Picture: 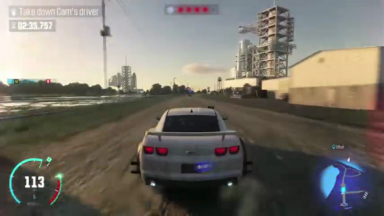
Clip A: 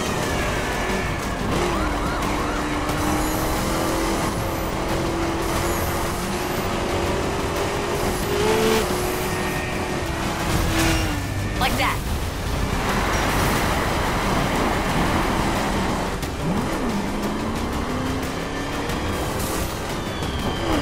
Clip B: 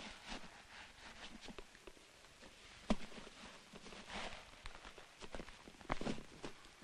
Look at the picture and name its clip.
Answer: A